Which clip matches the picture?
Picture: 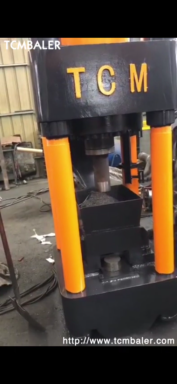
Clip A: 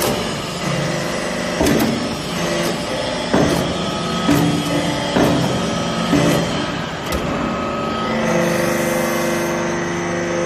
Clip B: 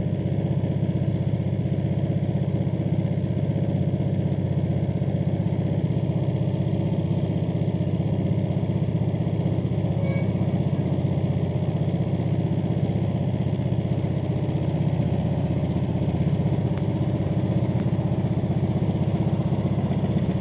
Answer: A